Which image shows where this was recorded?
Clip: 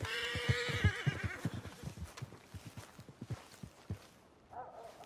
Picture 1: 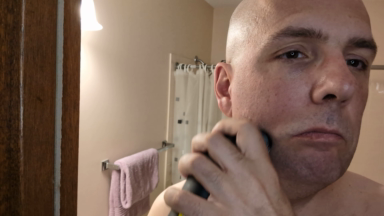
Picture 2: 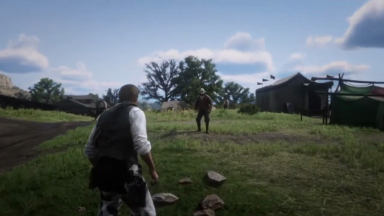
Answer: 2